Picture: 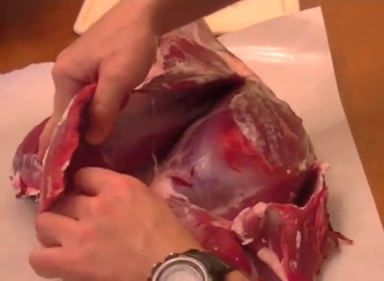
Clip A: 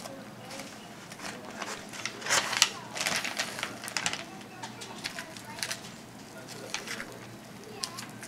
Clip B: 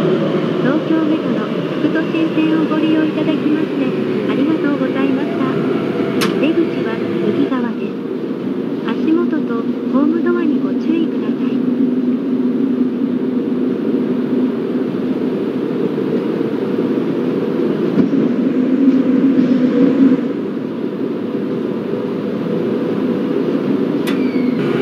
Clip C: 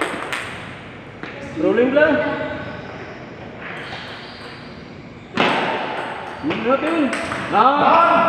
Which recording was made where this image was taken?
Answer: A